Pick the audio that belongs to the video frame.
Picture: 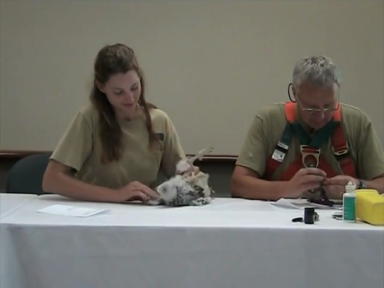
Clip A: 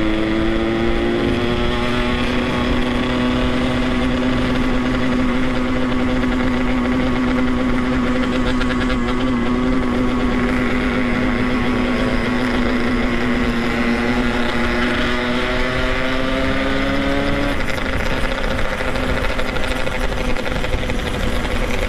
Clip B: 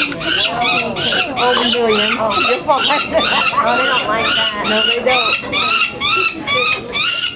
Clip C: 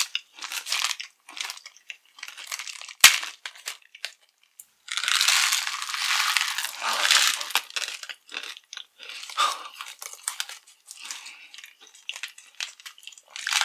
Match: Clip B